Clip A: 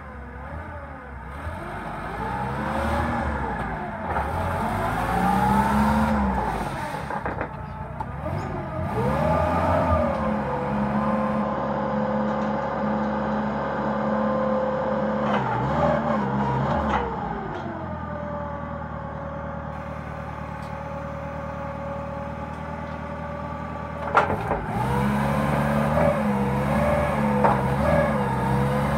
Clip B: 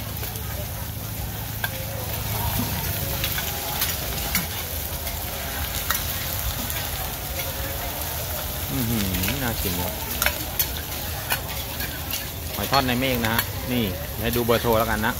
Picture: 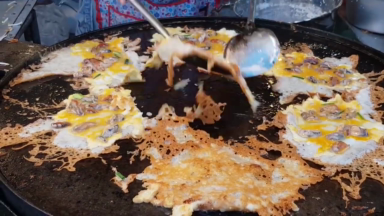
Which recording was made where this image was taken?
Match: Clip B